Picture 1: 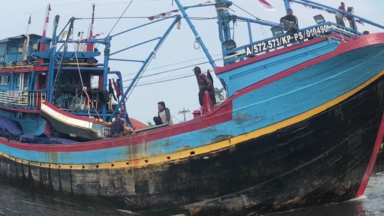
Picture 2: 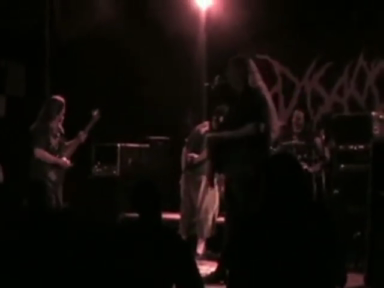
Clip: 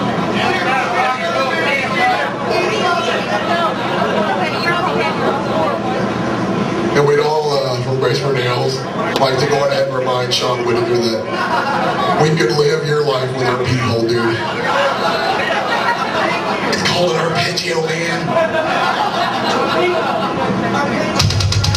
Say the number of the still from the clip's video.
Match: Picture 2